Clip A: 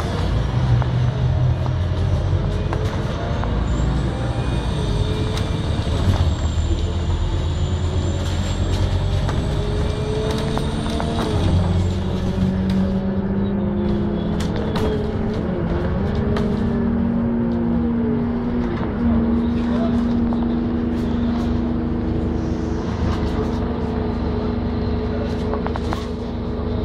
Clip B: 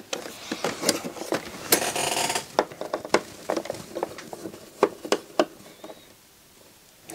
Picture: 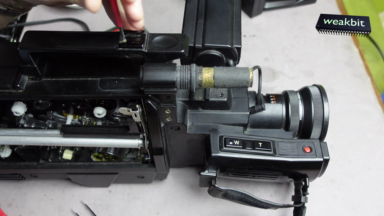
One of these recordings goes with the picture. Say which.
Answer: B